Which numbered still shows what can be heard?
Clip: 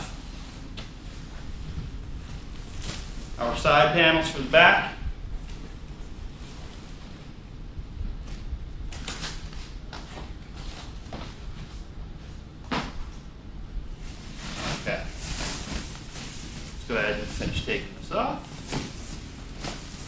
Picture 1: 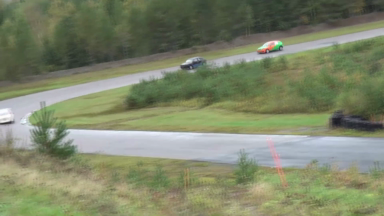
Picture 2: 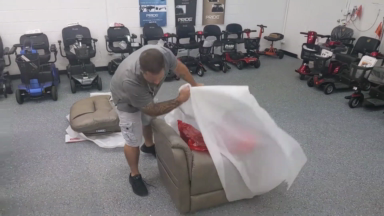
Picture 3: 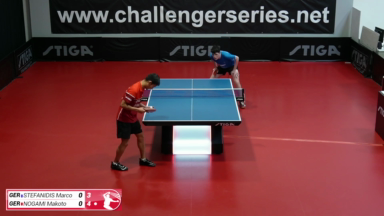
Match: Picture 2